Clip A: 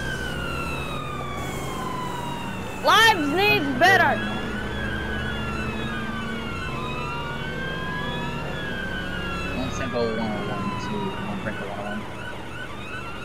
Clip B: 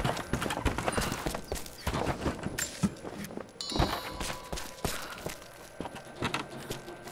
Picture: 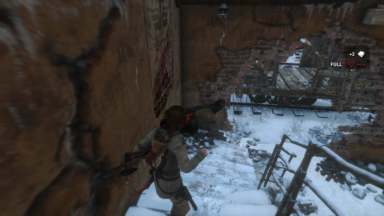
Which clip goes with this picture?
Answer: B